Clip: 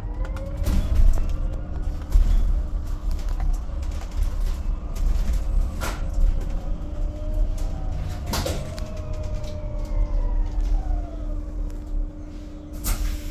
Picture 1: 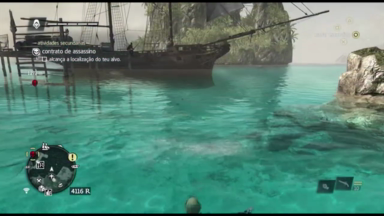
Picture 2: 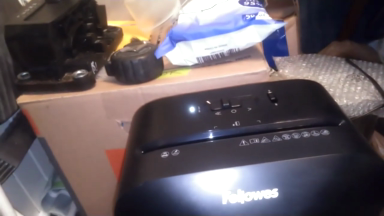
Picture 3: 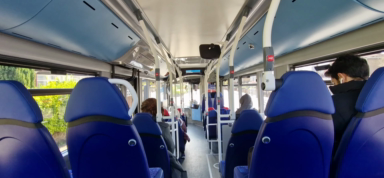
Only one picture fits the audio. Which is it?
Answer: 3